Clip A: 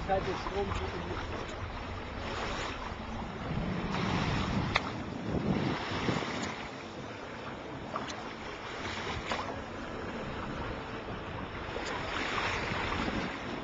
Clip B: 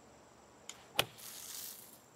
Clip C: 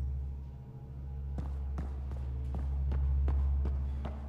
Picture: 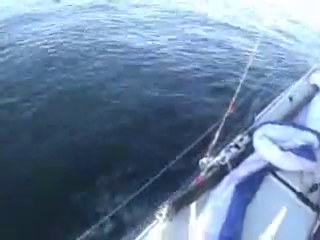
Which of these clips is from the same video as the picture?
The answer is A